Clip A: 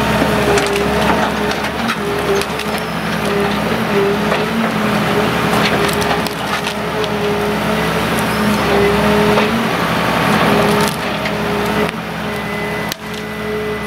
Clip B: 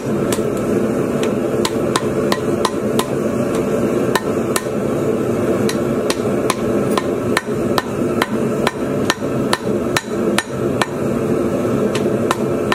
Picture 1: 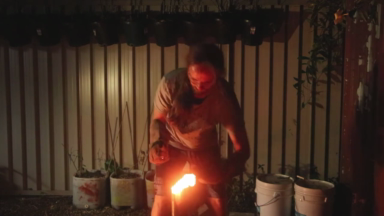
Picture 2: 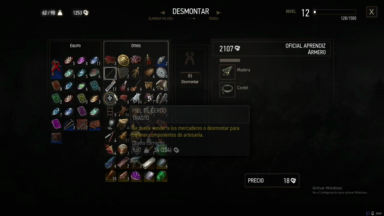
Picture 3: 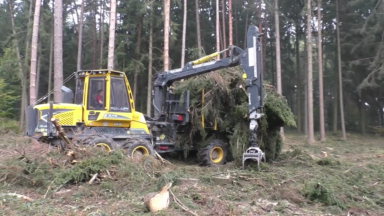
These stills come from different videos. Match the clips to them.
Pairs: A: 3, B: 1